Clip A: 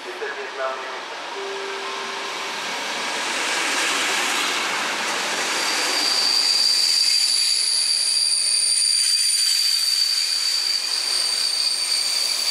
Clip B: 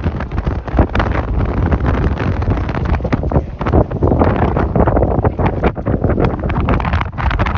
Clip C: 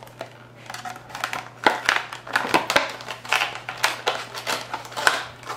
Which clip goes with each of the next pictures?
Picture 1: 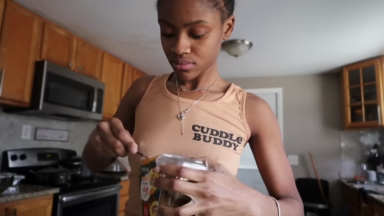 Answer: C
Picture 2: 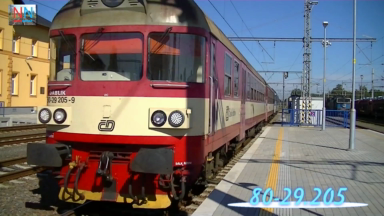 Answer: A